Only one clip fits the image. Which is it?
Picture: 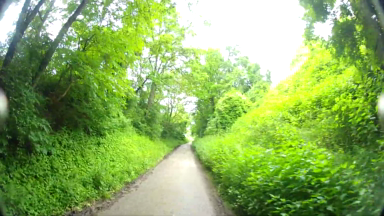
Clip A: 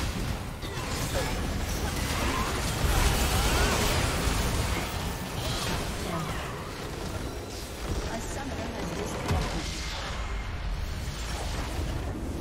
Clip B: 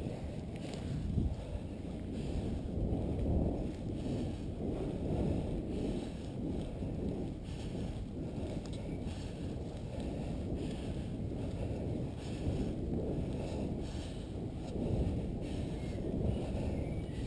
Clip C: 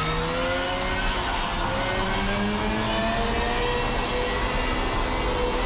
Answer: B